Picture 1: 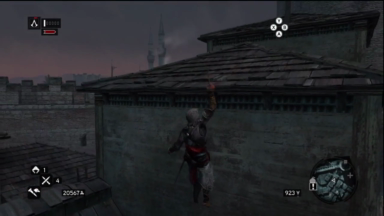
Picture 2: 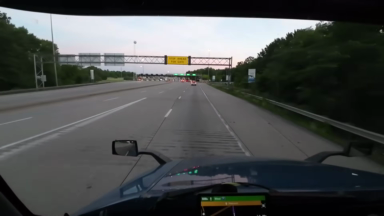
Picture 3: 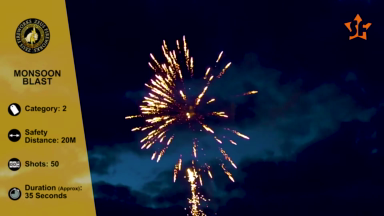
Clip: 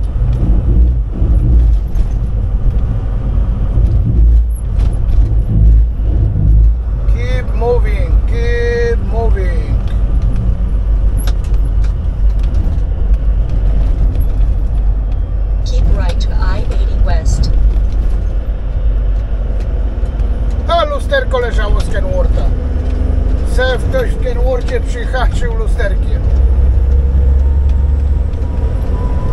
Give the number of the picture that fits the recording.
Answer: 2